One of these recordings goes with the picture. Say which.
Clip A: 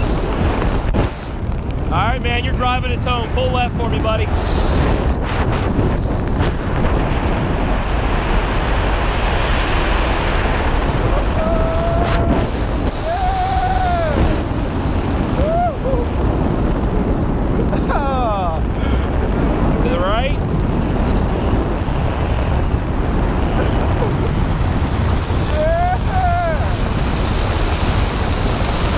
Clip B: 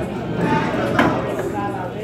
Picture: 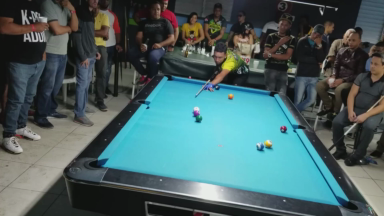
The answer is B